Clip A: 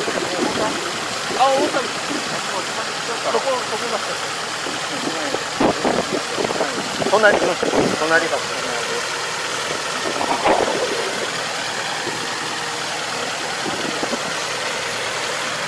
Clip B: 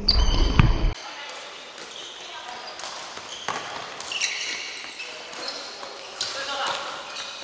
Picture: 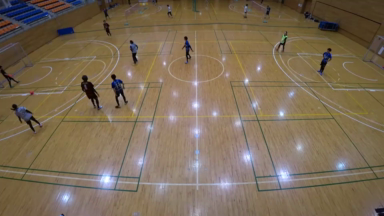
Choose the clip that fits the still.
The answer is B